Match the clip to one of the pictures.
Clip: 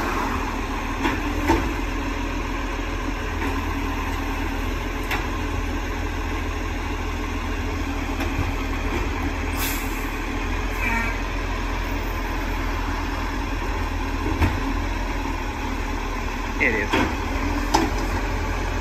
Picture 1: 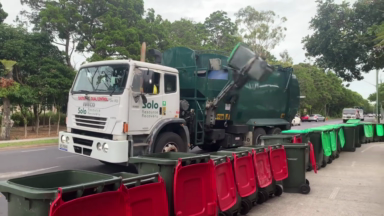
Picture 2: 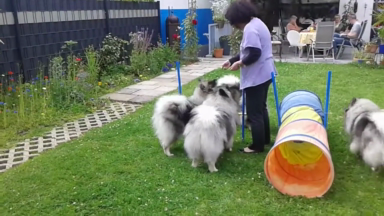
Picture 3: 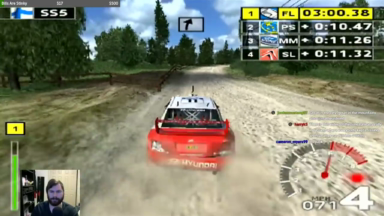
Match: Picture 1